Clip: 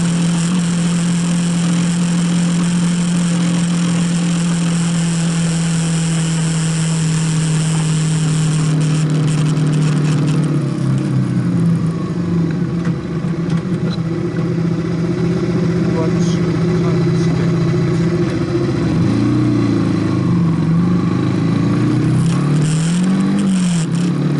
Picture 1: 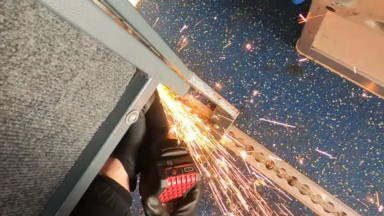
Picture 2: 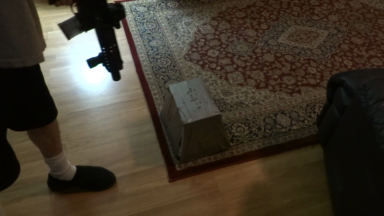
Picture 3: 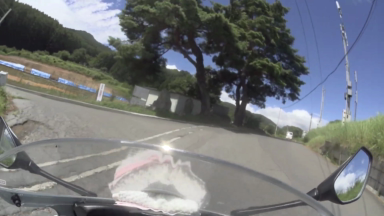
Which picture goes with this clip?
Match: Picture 3